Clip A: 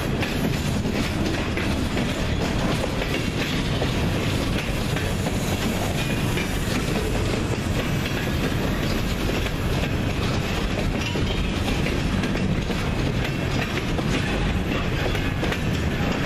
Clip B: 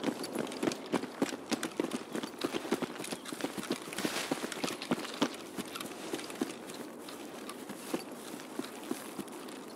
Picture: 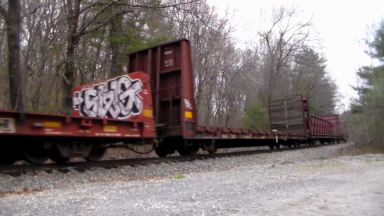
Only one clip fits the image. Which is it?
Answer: A